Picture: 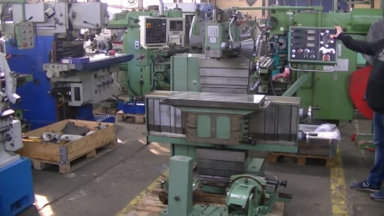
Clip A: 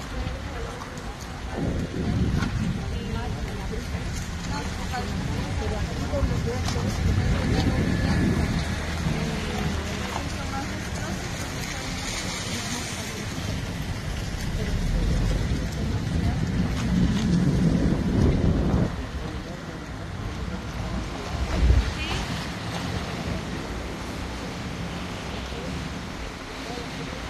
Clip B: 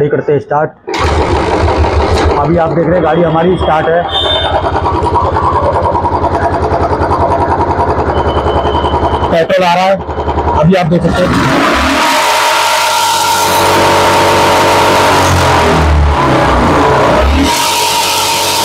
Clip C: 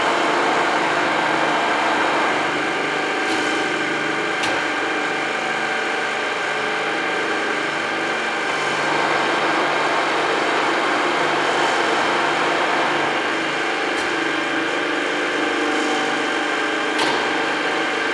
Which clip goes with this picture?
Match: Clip C